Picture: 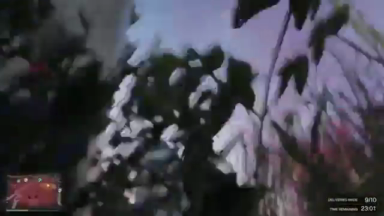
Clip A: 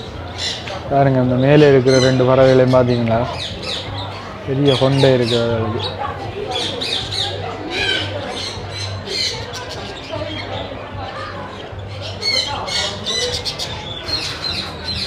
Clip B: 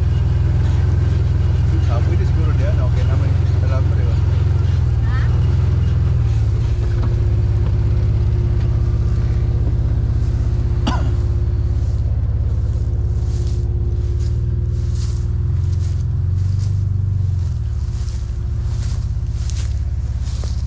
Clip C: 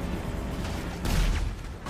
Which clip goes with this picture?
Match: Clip C